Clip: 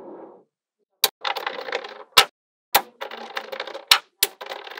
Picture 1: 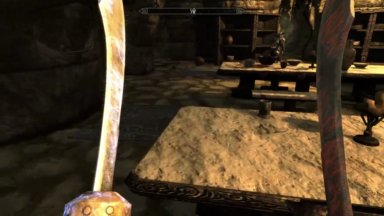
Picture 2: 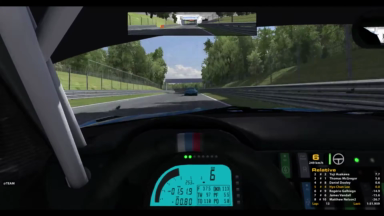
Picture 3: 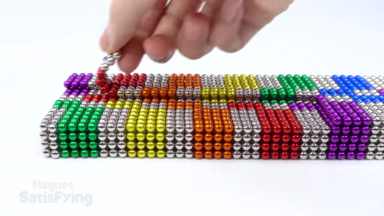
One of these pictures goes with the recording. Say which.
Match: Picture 3